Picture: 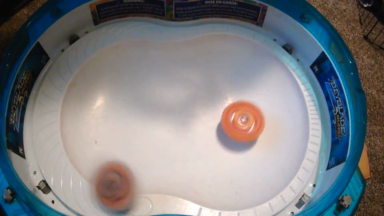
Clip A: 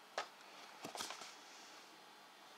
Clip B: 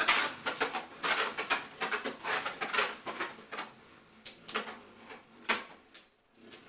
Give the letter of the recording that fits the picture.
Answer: B